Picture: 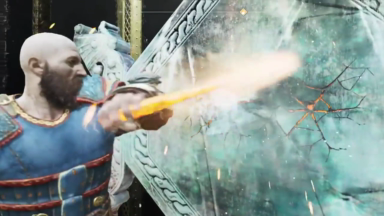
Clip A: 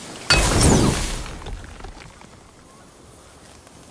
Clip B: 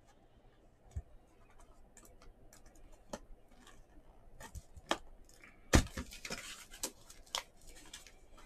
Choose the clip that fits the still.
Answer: A